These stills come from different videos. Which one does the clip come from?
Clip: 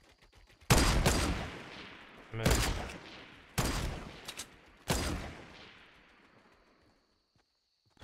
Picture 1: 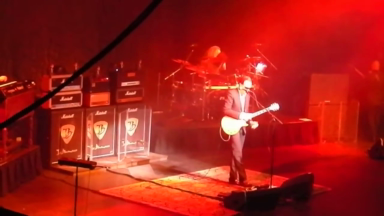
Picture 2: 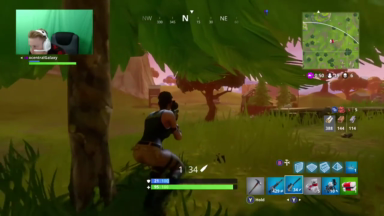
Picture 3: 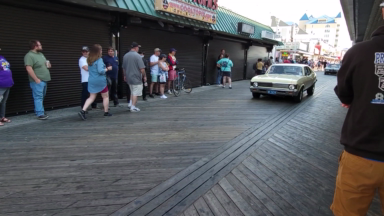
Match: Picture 2